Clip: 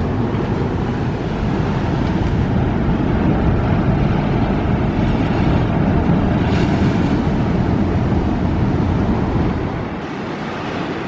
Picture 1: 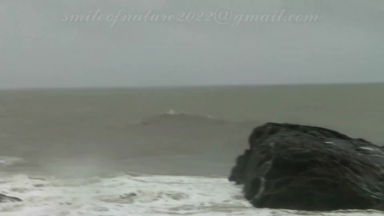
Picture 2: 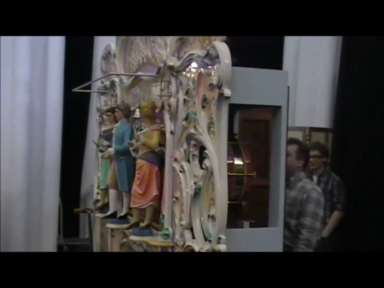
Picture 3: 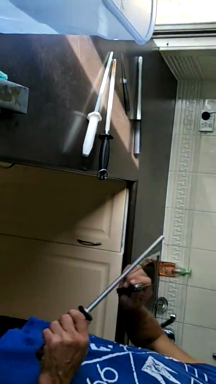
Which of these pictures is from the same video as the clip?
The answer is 1